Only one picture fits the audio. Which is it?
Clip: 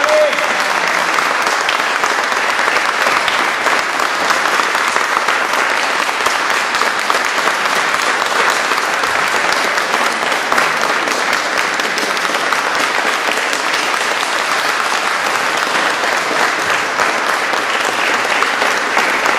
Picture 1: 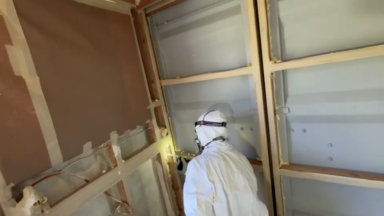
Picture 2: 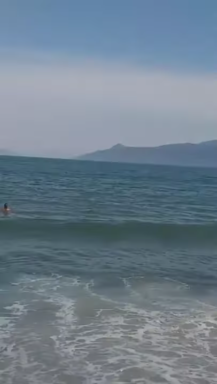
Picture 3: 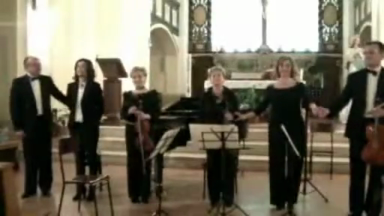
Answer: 3